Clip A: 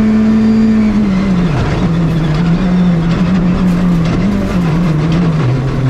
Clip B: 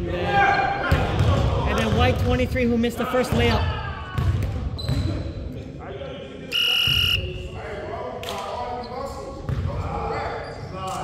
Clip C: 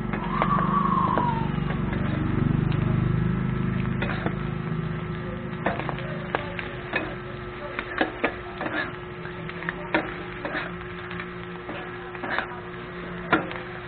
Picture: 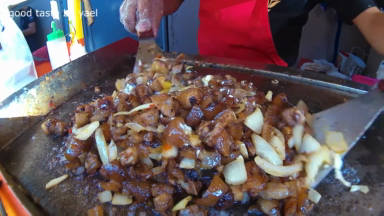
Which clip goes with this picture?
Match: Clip C